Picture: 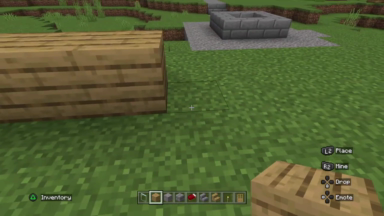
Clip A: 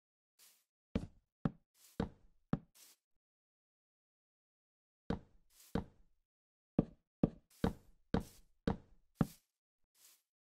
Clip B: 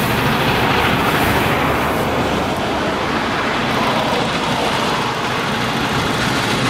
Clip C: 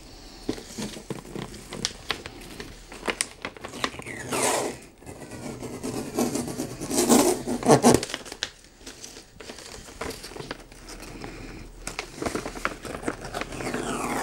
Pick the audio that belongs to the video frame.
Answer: A